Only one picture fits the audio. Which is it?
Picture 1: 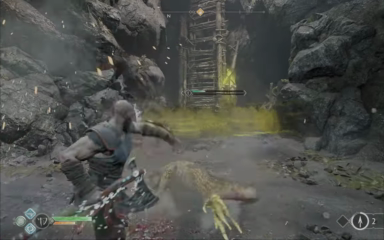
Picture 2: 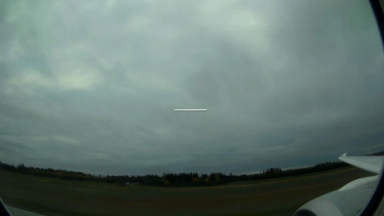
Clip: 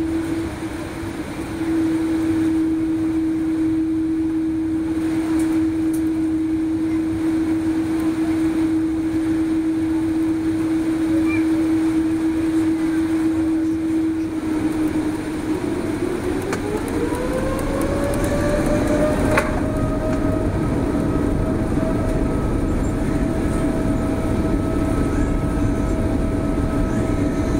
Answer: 2